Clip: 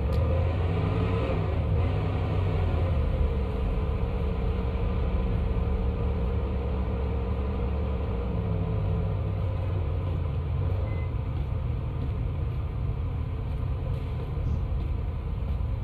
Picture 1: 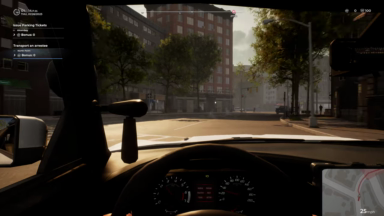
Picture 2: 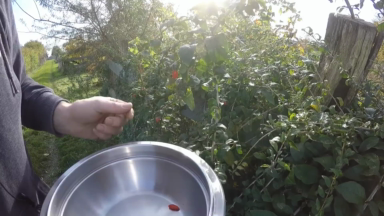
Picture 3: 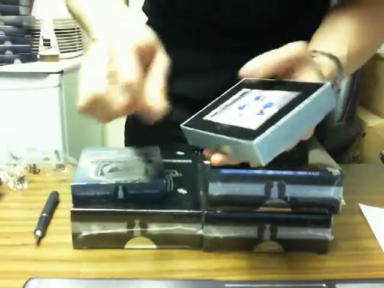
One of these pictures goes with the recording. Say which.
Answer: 1